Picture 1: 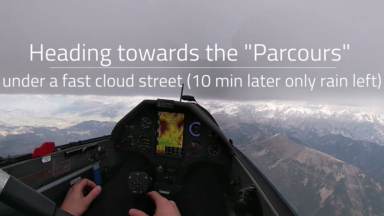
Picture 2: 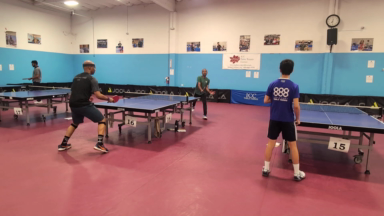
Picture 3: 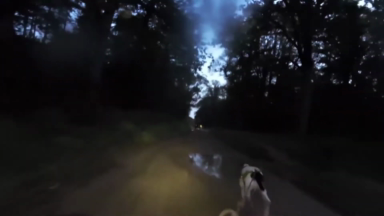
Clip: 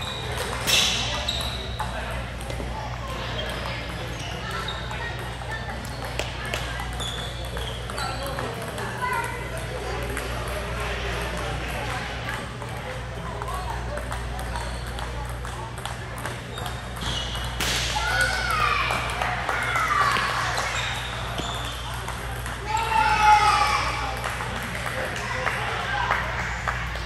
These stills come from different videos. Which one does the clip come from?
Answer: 2